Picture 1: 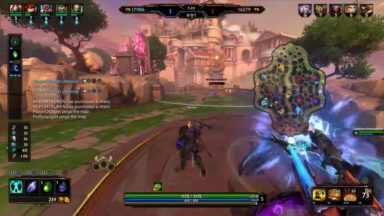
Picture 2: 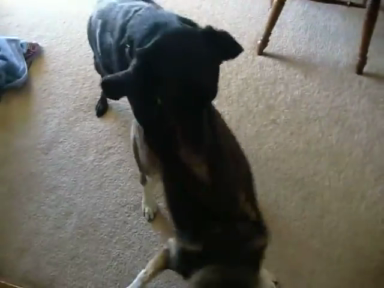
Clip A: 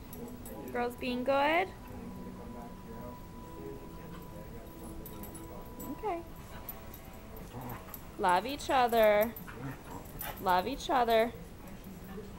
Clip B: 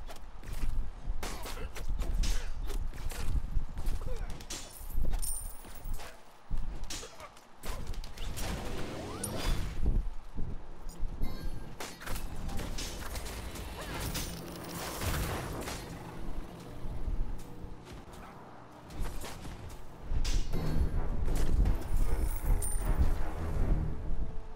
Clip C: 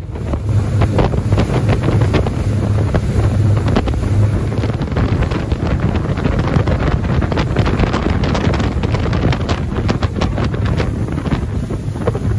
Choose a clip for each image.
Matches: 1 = B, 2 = A